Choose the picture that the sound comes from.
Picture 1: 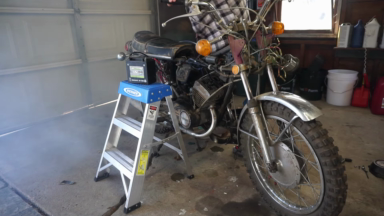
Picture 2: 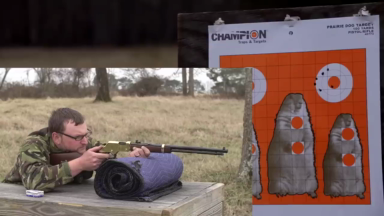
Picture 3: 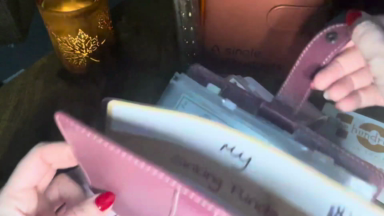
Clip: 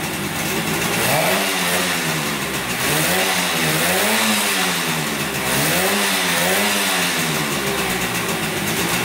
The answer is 1